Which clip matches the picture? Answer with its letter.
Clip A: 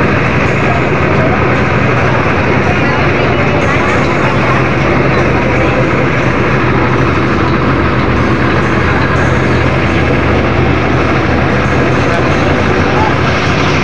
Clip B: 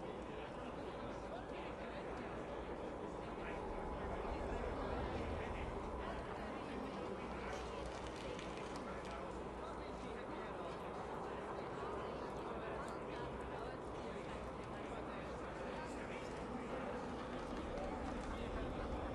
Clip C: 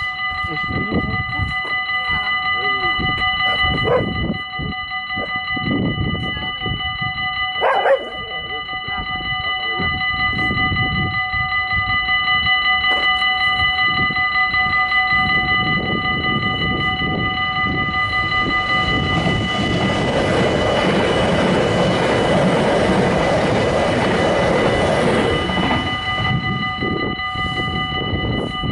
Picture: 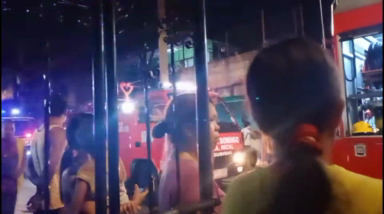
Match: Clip A